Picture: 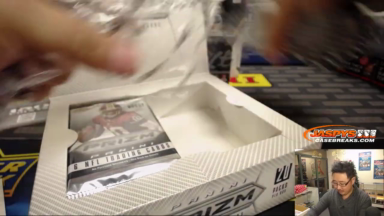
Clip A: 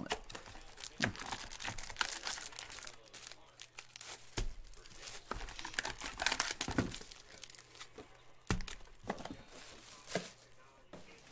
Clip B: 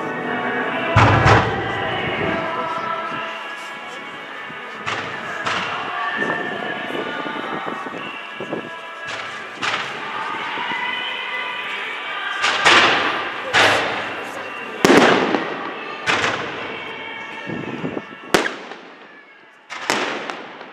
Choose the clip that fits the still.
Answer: A